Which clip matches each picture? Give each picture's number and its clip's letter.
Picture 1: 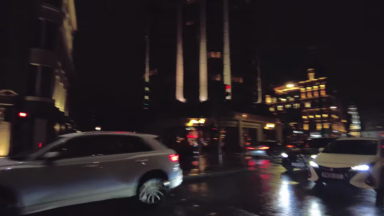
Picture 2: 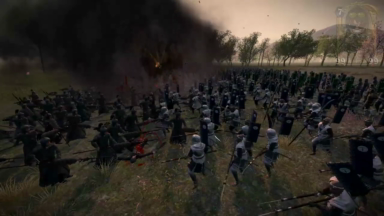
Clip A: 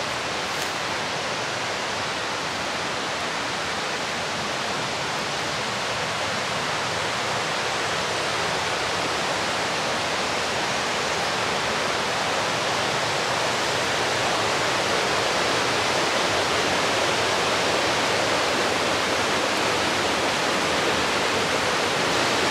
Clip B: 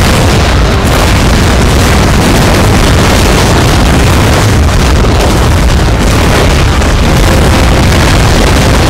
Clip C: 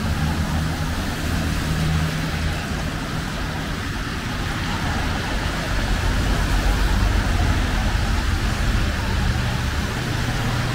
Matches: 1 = C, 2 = B